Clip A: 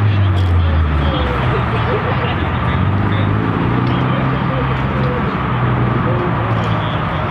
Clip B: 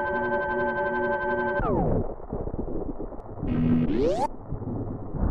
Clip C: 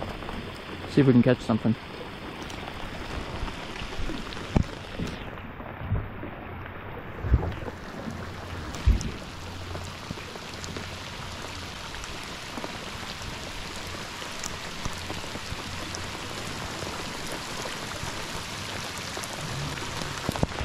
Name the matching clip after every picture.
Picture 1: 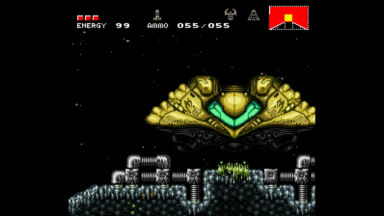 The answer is B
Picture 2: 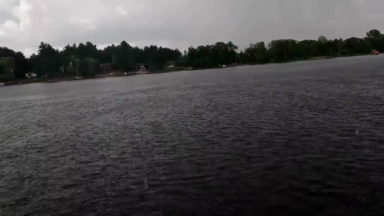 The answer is C